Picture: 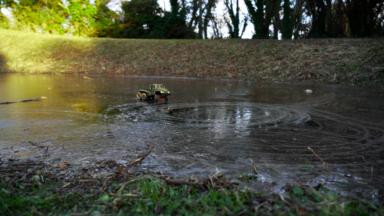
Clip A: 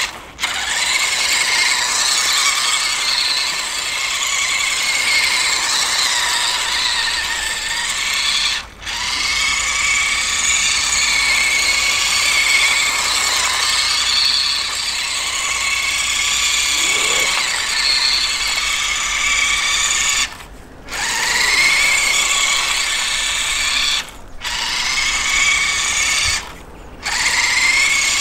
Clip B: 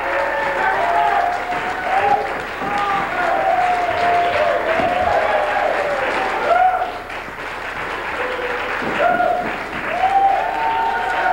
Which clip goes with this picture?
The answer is A